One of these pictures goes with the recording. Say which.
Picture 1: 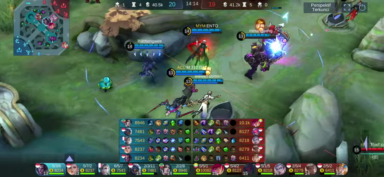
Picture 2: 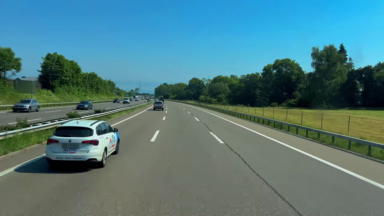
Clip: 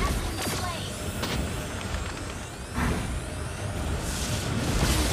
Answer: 1